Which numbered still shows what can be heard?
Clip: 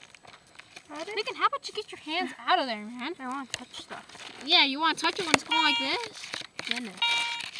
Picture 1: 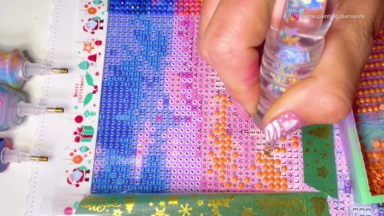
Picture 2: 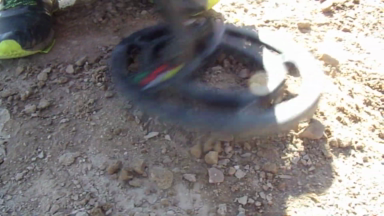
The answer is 2